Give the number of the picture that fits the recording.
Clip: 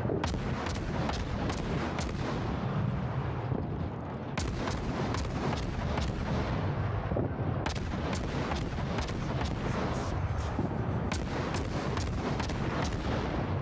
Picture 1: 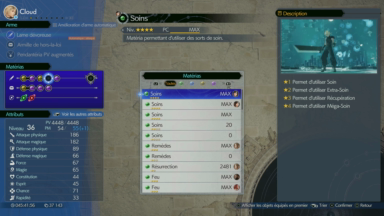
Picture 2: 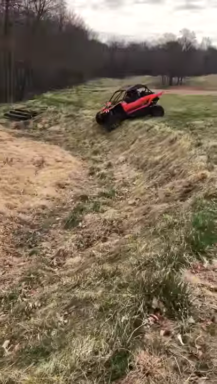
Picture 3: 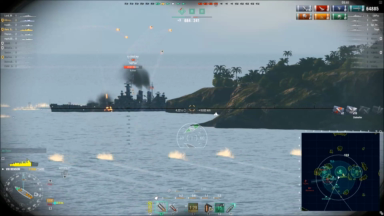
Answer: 3